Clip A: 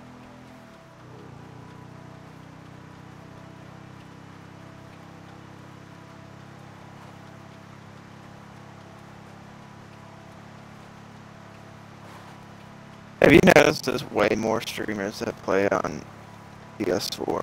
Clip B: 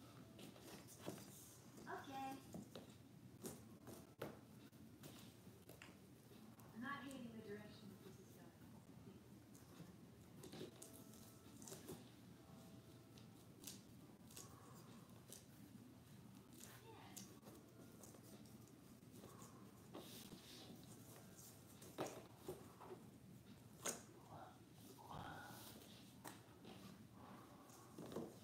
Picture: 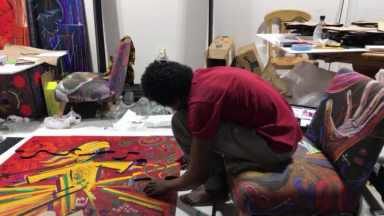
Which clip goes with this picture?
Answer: B